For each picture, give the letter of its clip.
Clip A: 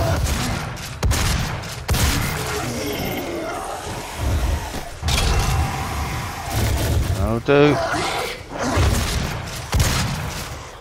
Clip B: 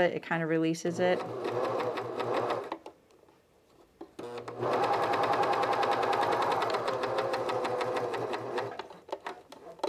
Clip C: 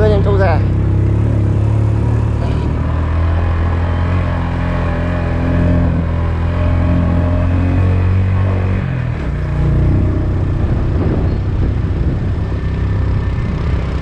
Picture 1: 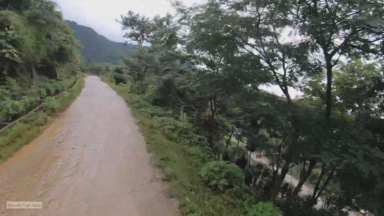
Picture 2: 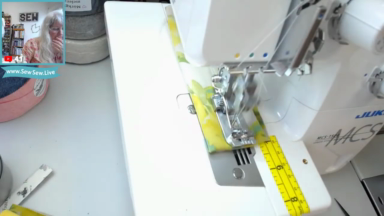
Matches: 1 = C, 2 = B